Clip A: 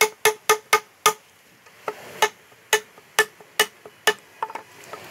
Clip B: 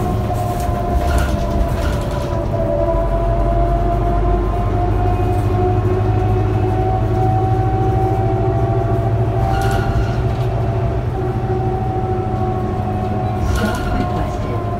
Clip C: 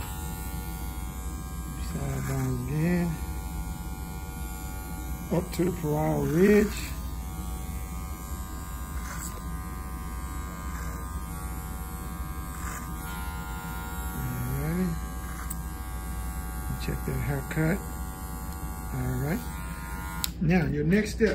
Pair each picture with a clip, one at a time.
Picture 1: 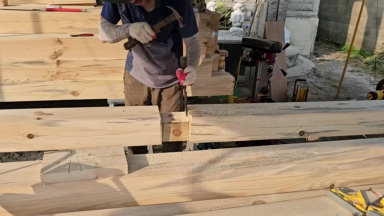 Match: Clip A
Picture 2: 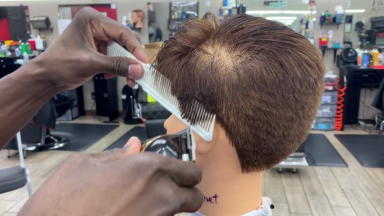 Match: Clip C